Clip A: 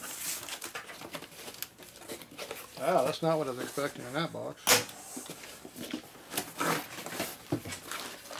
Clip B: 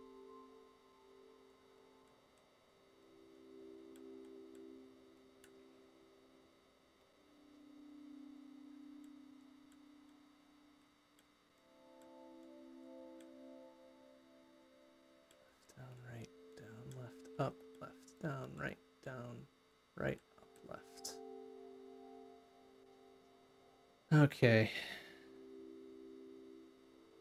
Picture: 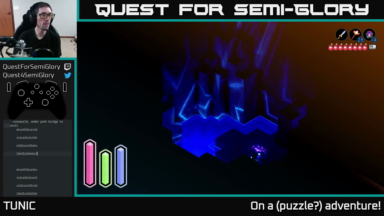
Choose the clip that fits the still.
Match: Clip B